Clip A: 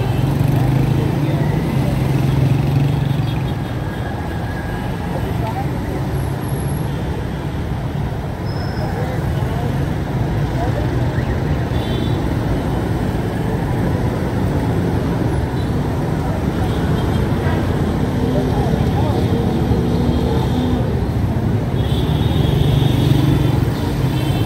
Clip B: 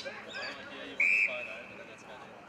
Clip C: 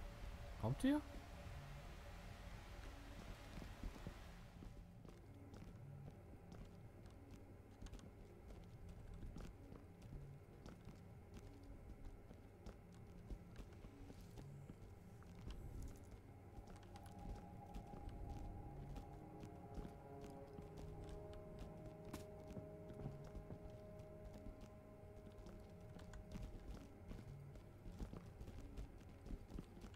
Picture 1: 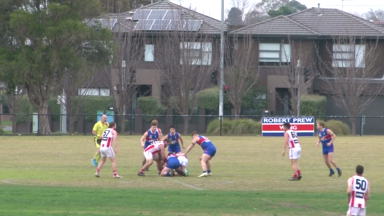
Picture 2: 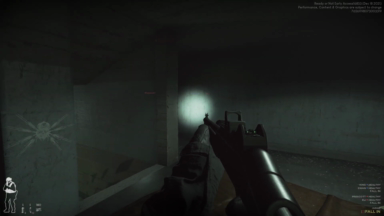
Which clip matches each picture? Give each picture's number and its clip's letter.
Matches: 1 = B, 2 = C